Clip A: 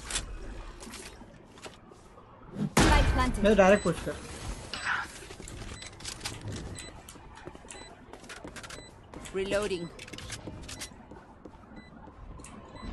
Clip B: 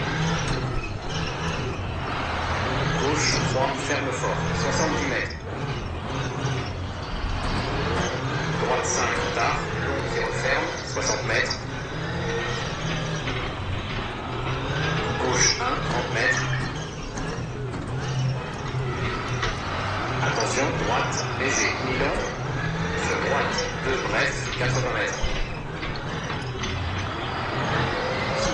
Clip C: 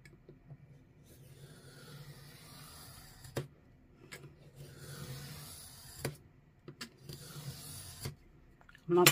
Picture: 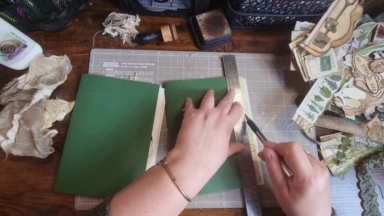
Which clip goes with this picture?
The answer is C